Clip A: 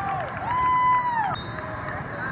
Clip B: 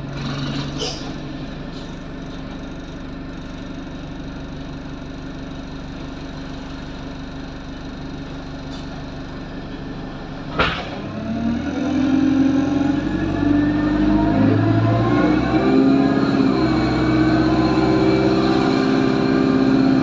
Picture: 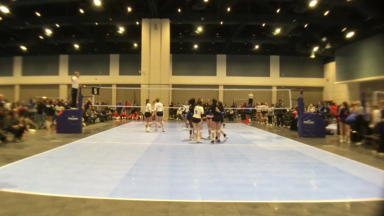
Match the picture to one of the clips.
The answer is A